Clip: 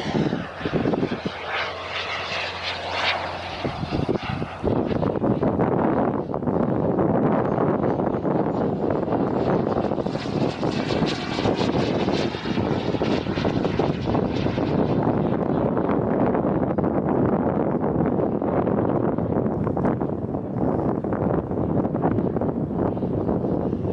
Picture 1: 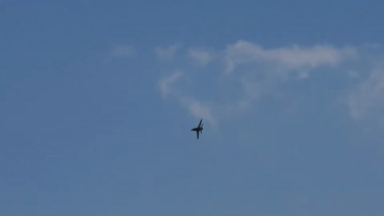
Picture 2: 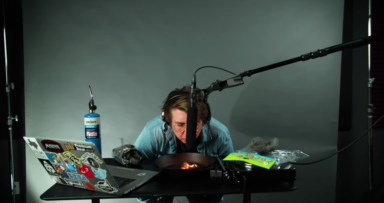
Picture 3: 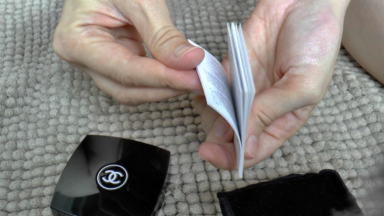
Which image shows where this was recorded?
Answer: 1